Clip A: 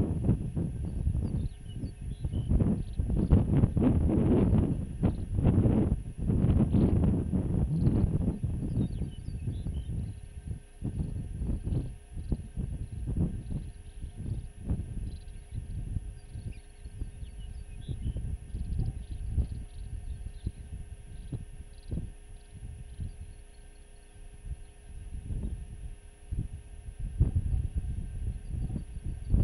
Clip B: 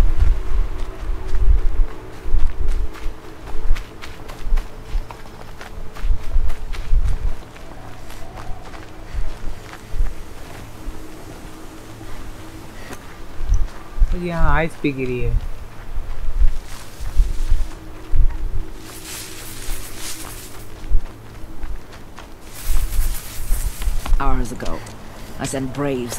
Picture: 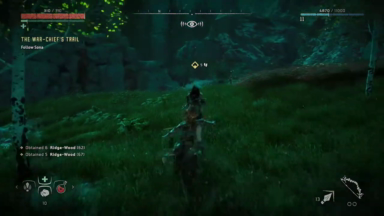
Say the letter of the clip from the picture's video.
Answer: B